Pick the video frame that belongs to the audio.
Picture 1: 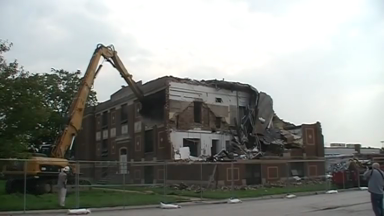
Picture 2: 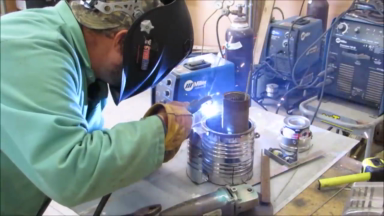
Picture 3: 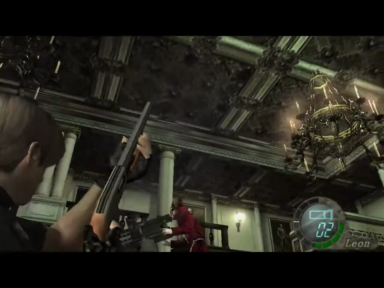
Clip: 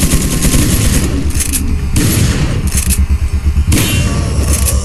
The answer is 3